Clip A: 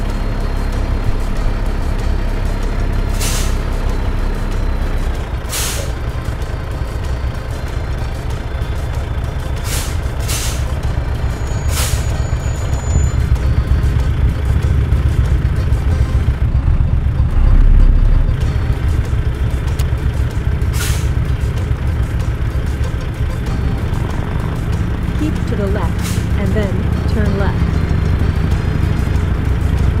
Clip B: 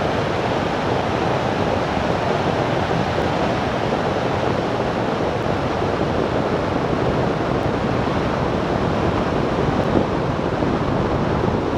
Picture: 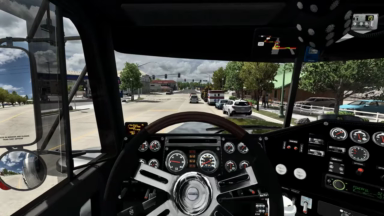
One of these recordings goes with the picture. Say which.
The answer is A